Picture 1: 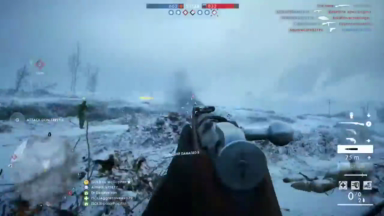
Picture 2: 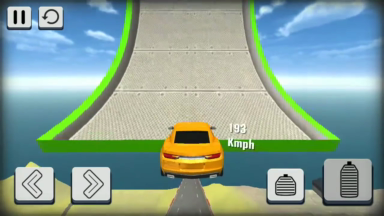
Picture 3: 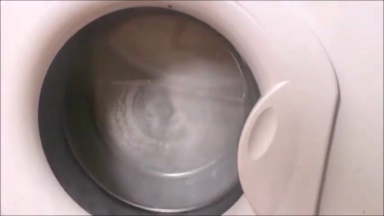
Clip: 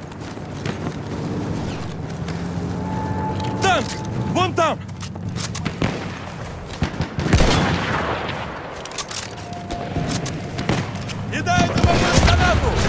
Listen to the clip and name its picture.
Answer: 1